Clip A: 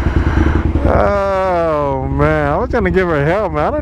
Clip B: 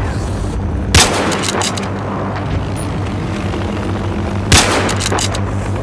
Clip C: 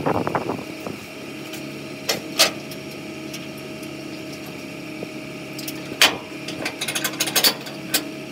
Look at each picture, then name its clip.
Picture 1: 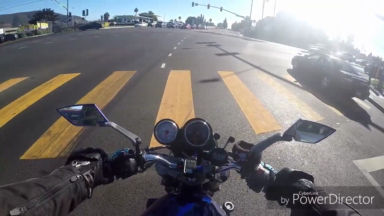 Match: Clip A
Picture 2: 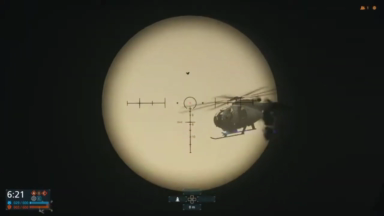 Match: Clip B